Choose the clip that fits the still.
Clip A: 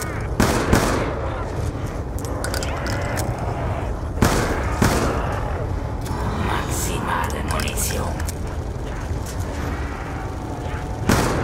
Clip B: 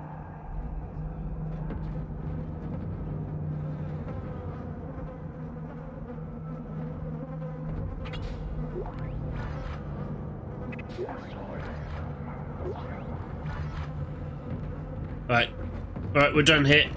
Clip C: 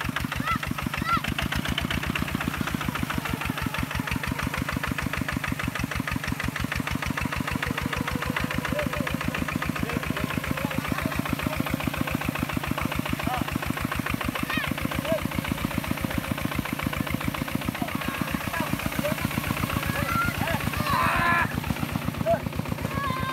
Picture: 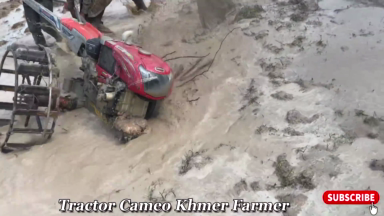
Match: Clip C